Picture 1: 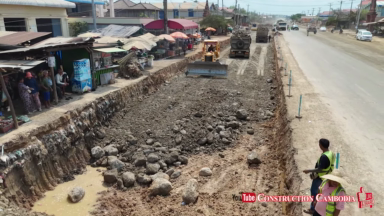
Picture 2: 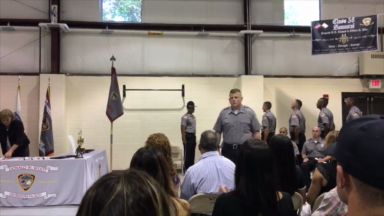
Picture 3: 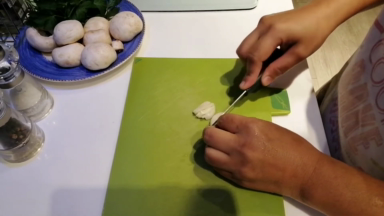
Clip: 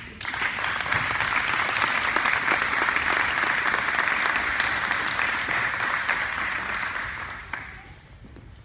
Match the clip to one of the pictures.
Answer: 2